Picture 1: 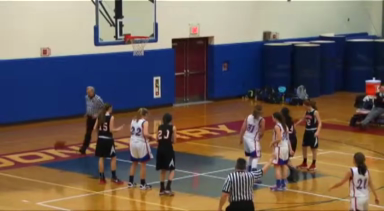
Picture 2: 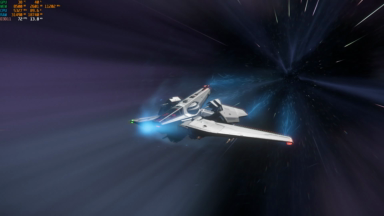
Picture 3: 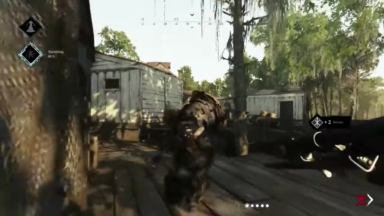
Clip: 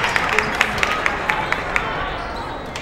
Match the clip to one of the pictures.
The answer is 1